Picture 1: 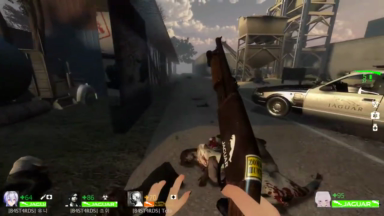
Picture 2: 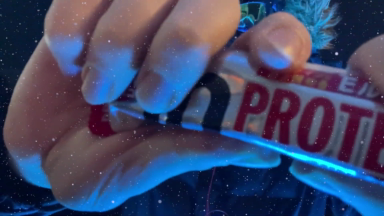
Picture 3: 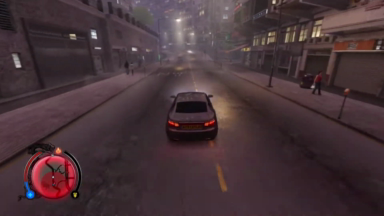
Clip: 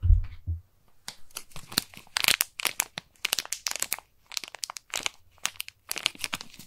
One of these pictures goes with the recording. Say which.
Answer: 2